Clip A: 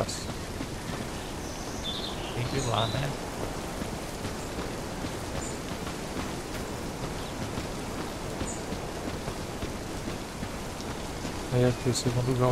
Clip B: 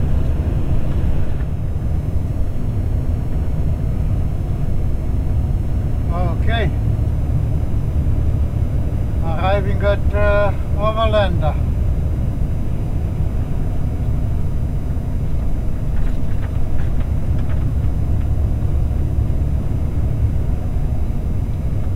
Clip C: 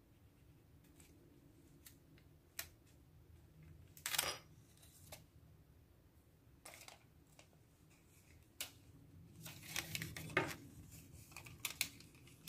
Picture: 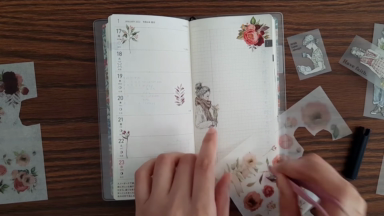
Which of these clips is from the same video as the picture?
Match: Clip C